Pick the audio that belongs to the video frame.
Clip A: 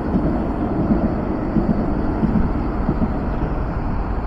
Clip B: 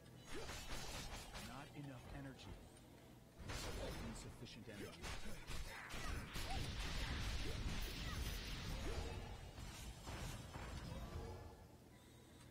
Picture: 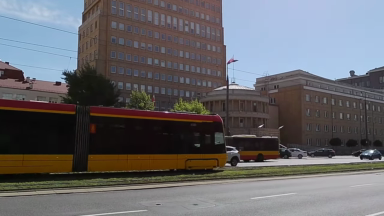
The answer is A